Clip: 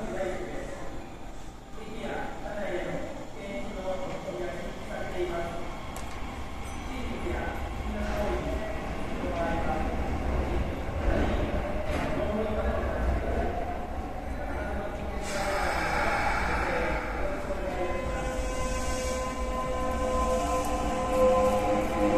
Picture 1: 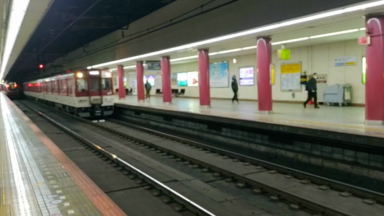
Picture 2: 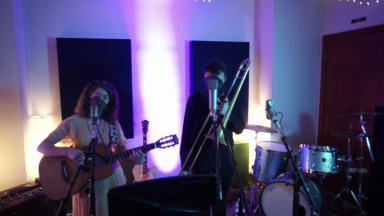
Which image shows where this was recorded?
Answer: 1